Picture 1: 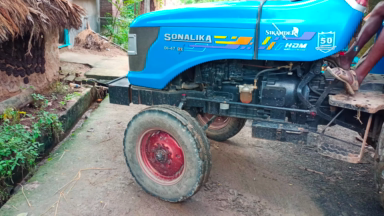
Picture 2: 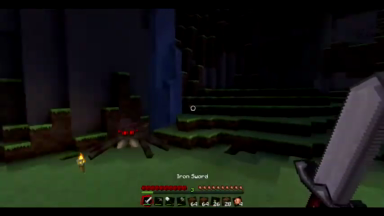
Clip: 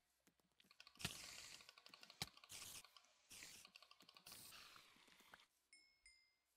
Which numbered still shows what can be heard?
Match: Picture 2